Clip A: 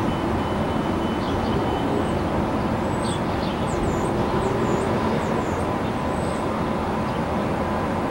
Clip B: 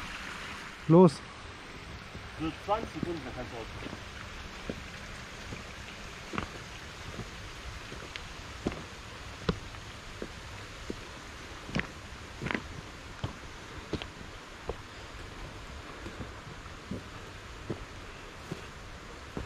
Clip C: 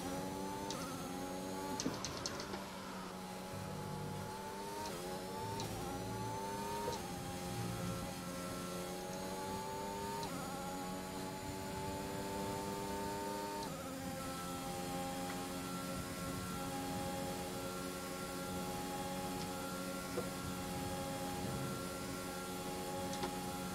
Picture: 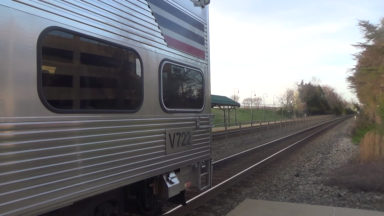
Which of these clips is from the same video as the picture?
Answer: A